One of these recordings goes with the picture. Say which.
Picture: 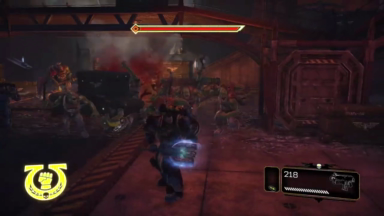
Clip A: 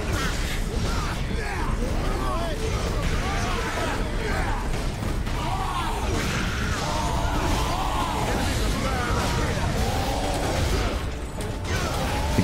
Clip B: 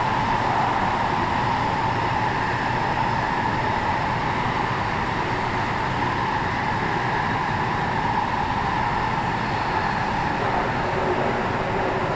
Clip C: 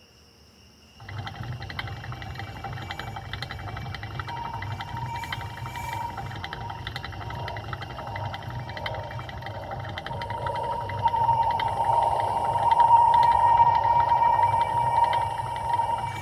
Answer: A